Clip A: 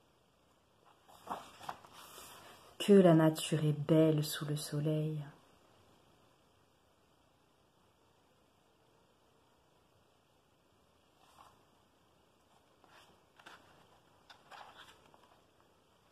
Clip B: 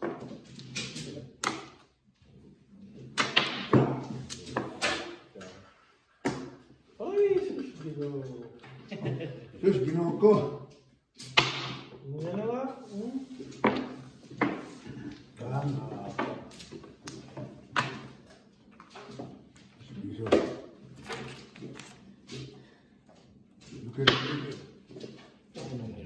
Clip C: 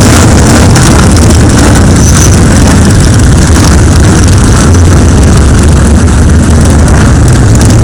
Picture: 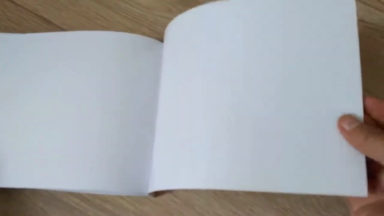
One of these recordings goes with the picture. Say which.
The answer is A